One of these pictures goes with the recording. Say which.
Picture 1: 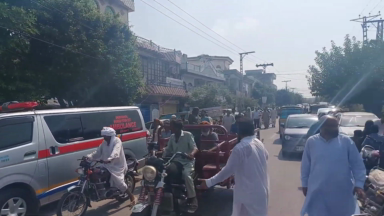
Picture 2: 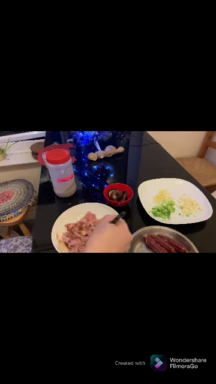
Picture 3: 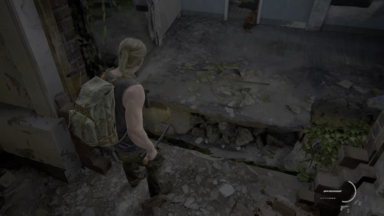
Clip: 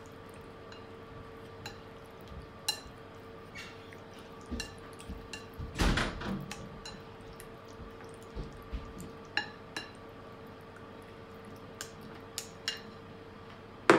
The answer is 2